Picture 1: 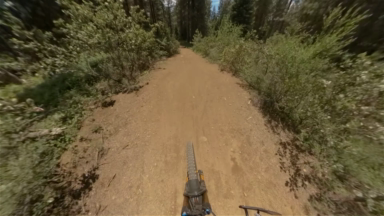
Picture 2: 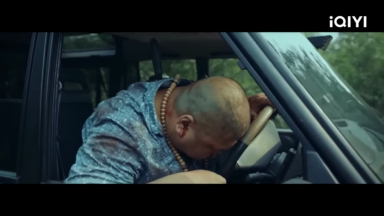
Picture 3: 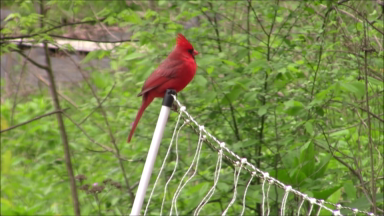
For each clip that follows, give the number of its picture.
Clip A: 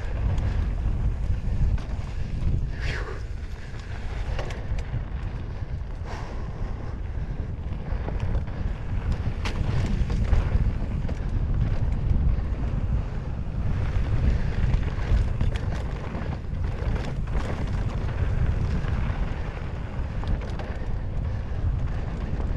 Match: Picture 1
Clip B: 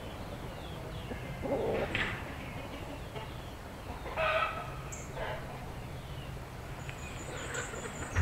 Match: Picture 3